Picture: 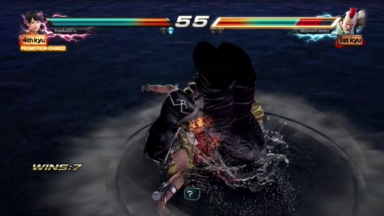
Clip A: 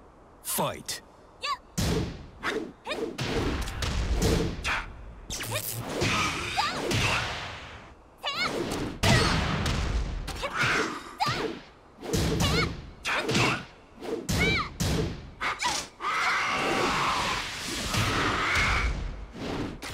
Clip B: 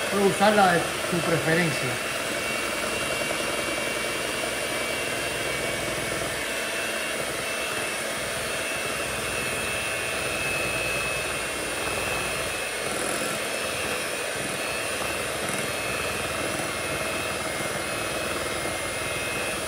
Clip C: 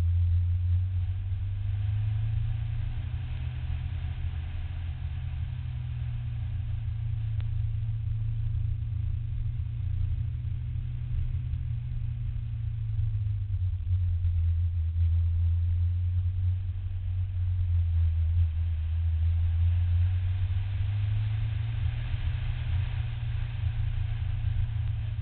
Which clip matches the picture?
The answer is A